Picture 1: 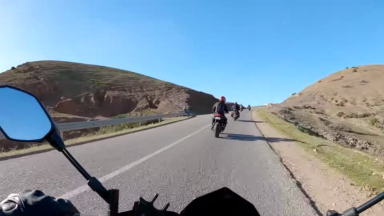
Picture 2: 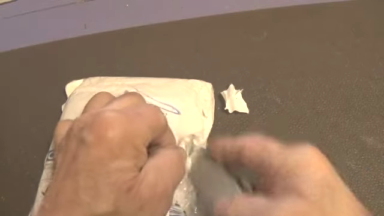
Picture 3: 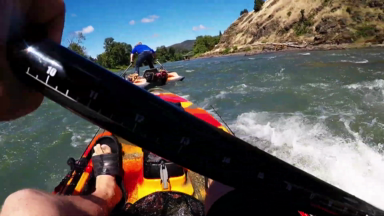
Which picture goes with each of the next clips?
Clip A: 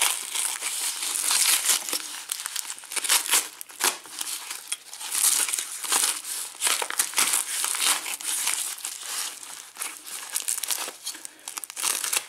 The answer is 2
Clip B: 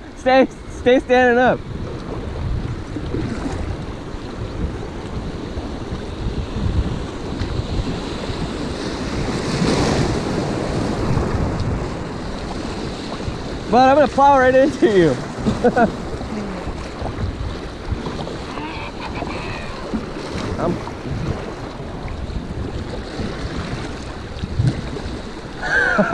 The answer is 3